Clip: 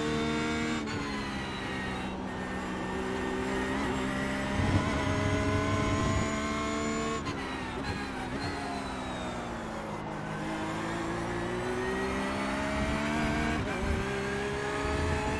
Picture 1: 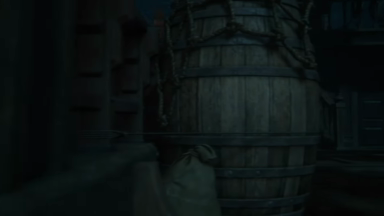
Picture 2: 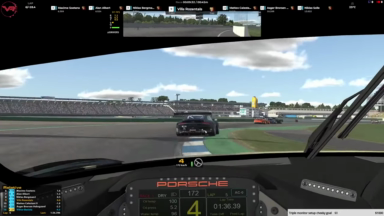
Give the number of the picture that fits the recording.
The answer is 2